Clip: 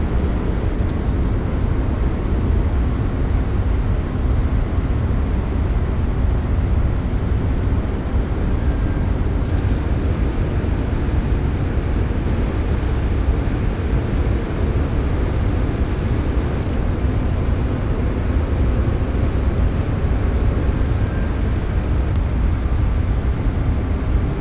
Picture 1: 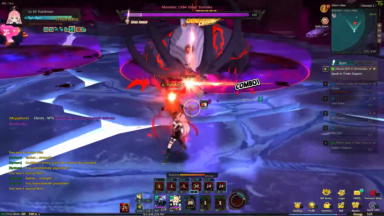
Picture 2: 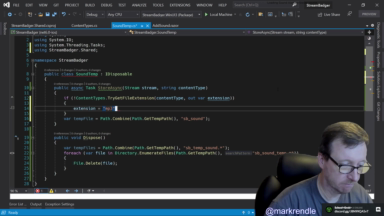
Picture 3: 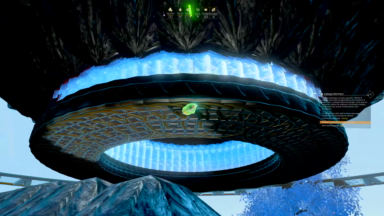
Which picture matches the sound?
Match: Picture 3